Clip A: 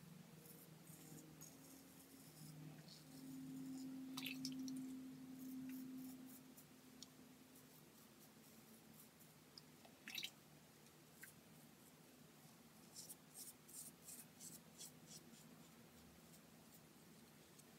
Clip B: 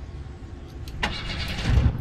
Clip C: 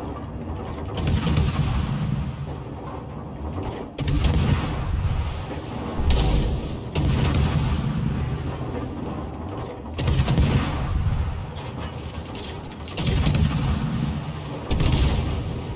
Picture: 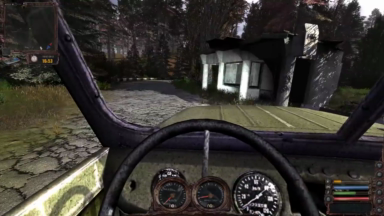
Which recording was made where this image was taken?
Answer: B